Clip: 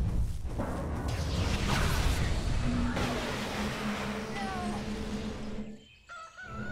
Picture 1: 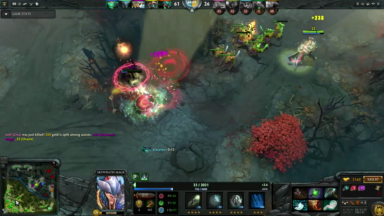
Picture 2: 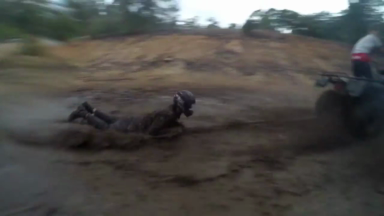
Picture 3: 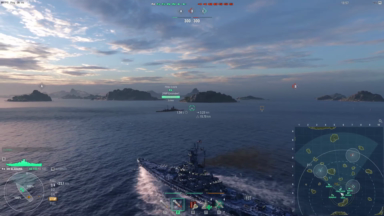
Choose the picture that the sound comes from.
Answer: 1